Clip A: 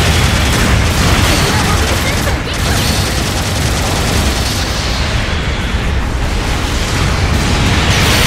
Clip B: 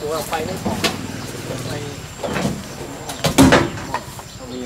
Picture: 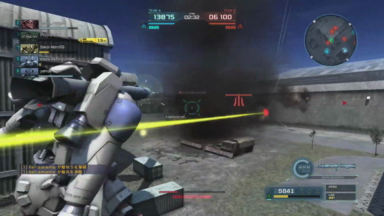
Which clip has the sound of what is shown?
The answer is A